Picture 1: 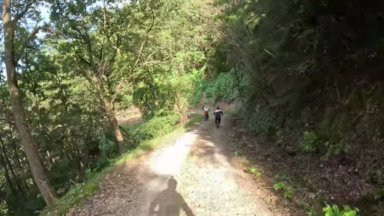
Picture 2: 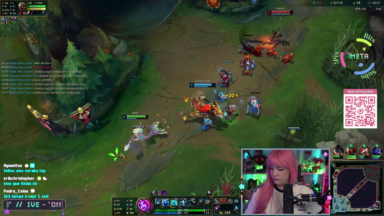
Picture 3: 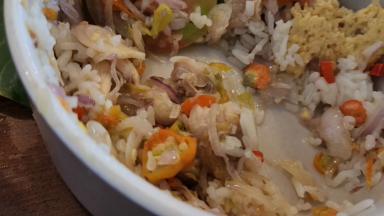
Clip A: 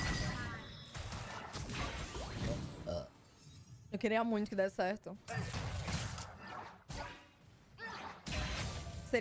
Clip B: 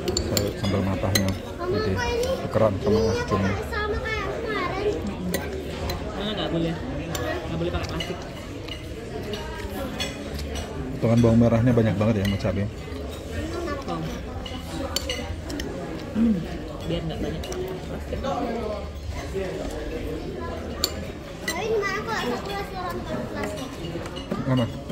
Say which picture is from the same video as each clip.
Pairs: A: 2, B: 3